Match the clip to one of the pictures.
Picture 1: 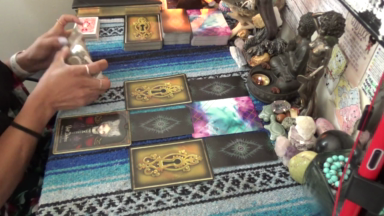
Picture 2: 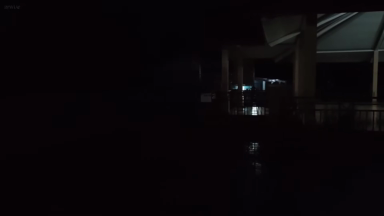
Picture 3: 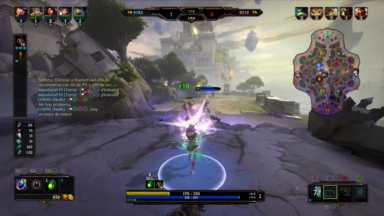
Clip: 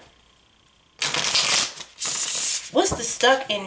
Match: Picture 1